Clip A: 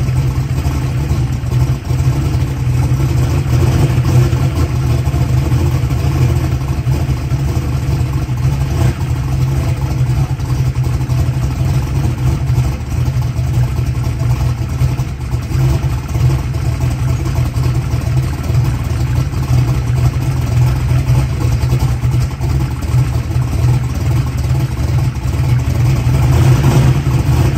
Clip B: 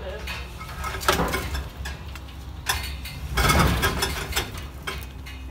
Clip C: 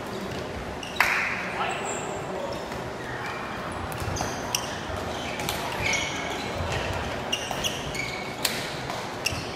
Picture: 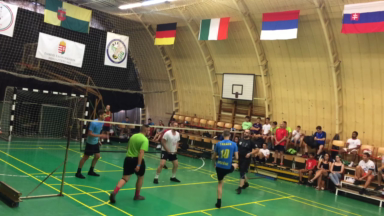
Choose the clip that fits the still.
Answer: C